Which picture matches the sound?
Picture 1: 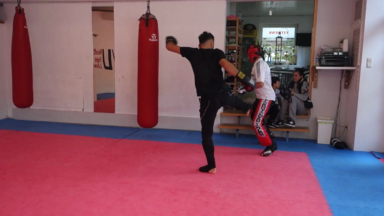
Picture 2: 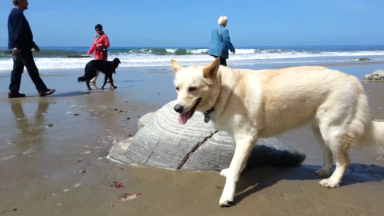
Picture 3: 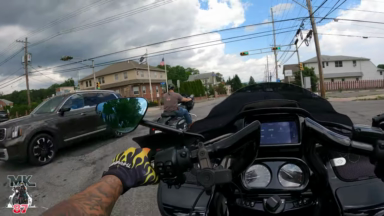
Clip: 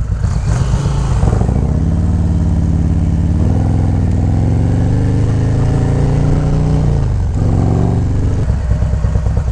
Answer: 3